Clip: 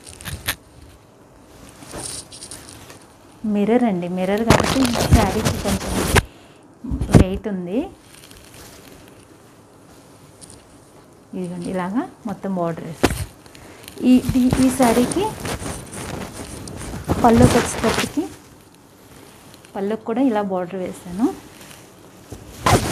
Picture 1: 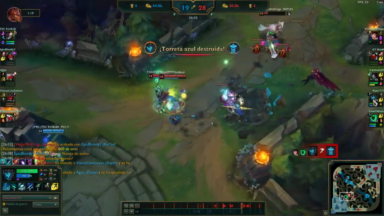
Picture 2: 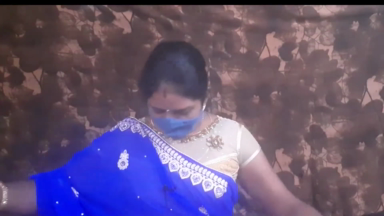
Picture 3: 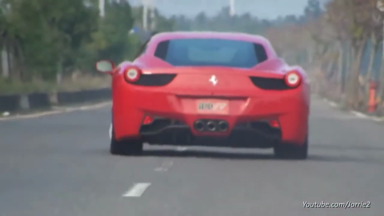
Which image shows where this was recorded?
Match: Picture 2